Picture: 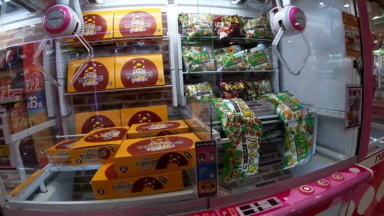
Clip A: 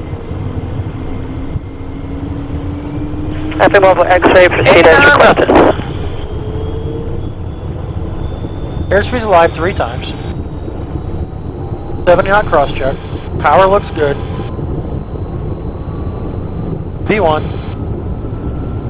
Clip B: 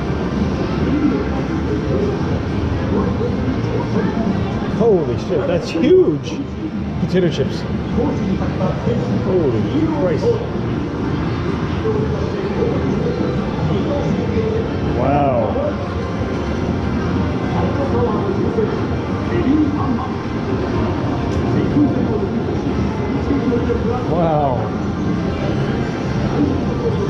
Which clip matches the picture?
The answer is B